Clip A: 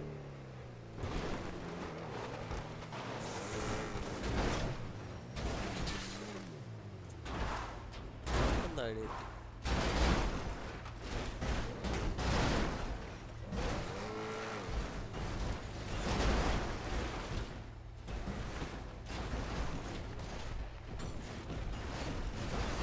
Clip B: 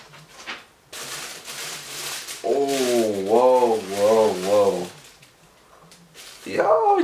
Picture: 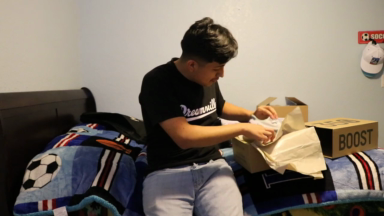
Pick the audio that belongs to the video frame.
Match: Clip B